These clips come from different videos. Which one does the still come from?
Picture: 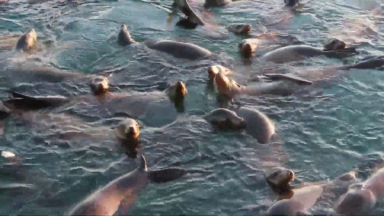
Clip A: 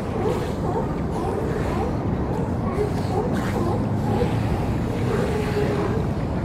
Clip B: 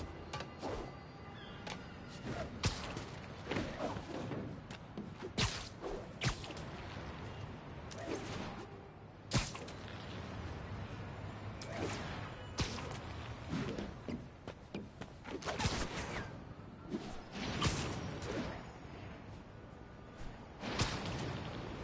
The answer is A